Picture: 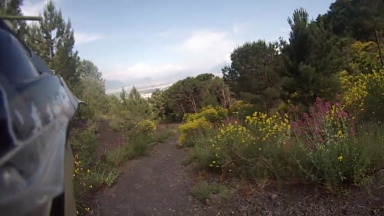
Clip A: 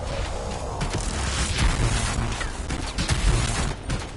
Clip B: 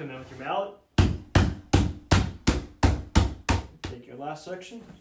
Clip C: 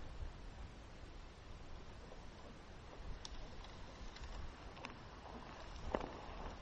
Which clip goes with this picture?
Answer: C